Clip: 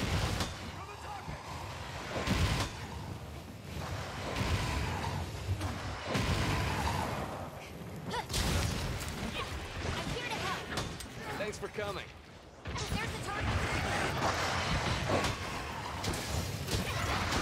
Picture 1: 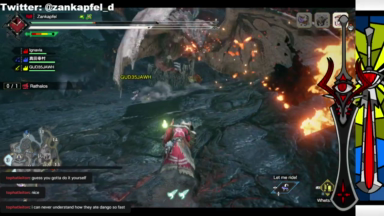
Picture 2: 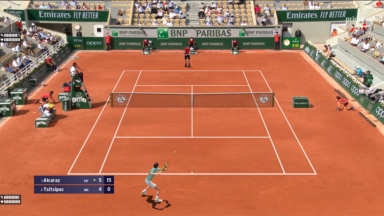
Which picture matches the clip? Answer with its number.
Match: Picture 1